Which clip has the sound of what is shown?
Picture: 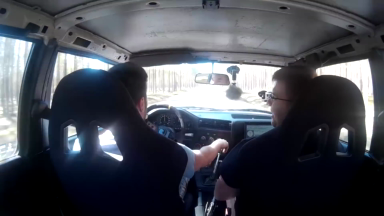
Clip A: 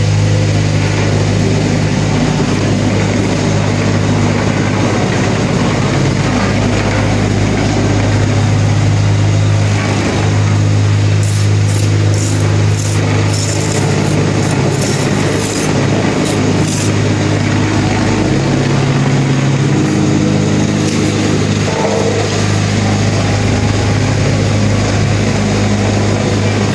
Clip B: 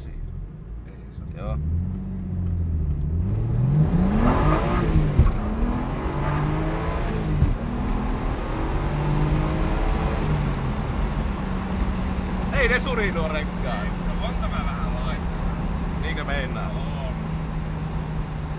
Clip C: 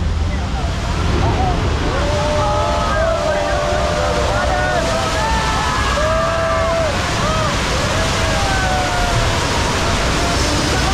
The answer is B